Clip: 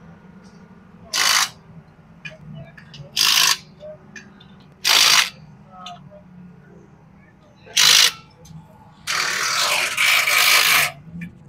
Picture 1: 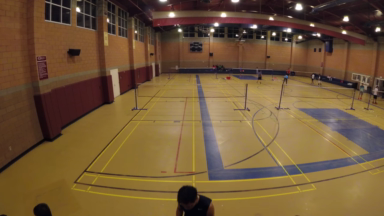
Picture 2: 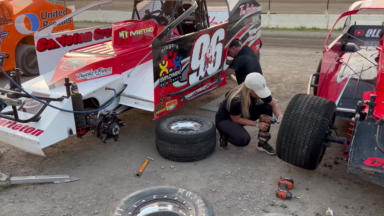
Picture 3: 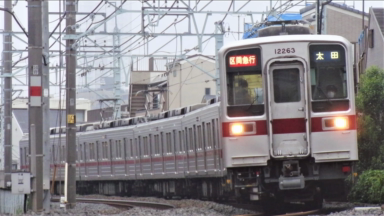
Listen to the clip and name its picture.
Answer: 2